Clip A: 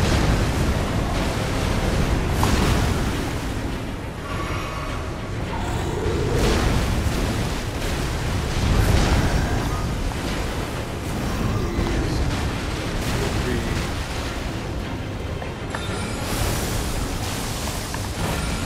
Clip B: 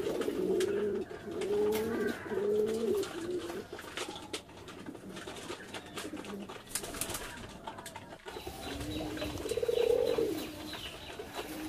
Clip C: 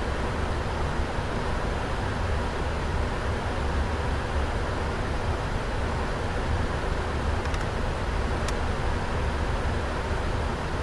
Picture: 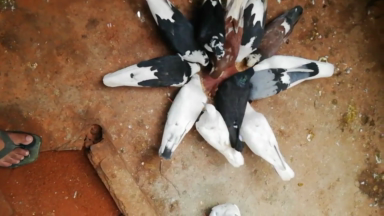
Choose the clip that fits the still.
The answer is B